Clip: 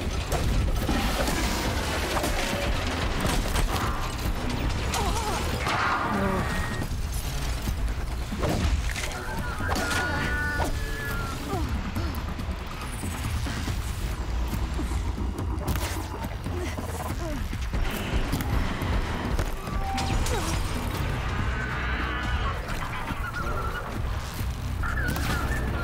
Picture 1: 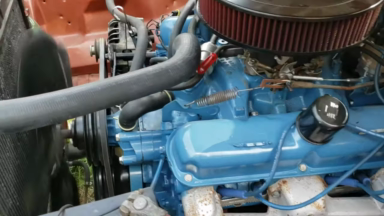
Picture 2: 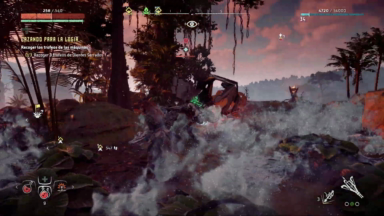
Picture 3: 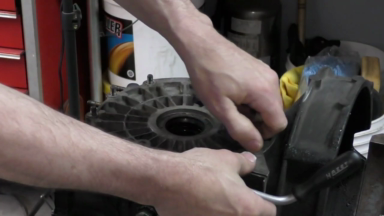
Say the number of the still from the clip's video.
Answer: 2